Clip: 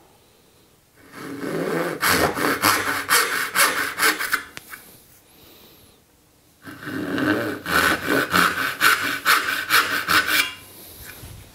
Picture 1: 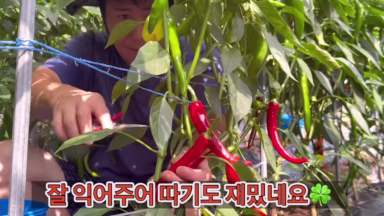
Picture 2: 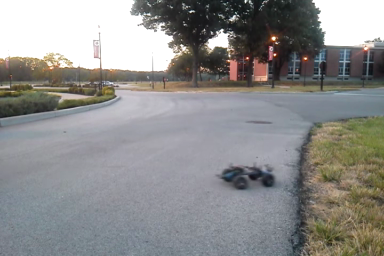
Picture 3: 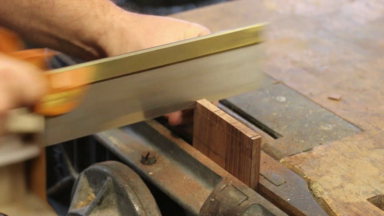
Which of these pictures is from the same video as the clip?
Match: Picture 3